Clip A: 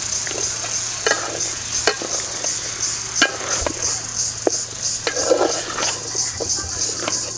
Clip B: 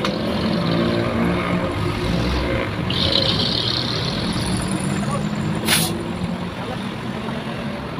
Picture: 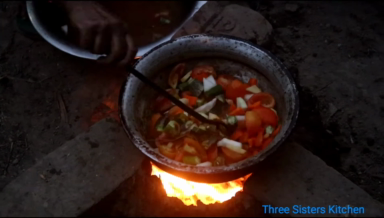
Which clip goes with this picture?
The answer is A